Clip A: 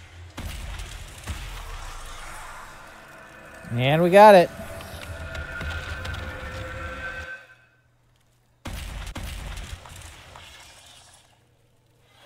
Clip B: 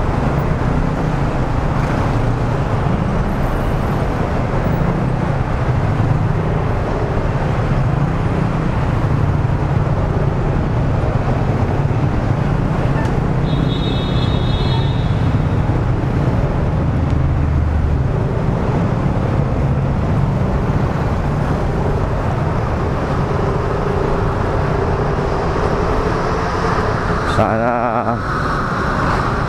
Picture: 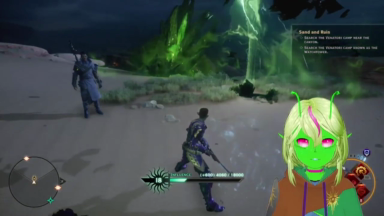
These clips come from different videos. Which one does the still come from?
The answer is A